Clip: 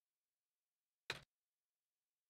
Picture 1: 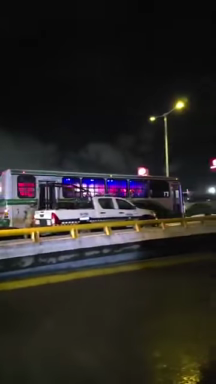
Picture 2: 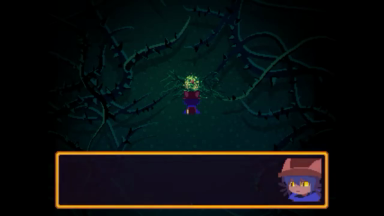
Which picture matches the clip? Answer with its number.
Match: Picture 2